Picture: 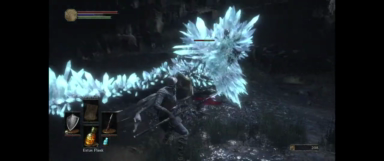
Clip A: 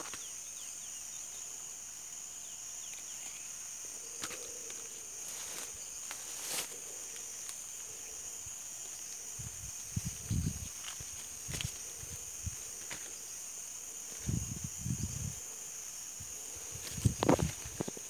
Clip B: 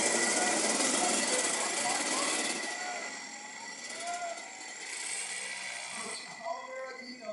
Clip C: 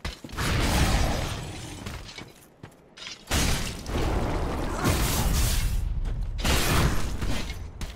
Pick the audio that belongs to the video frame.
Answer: C